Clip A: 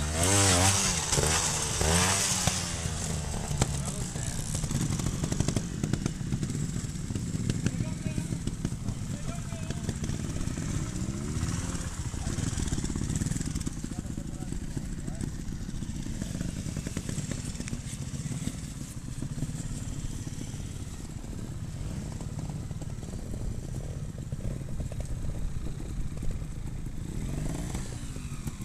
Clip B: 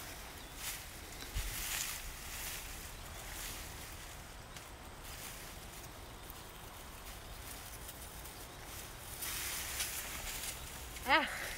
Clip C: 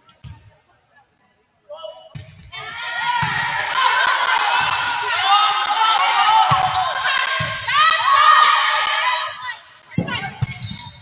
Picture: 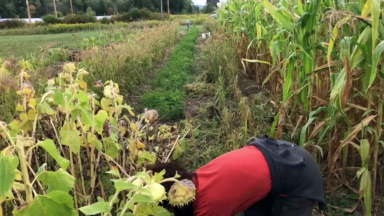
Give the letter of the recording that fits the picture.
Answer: B